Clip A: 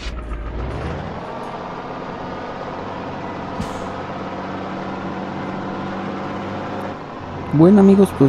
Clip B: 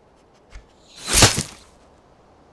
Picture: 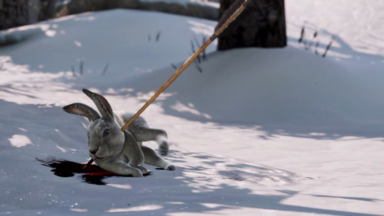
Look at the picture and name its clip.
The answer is B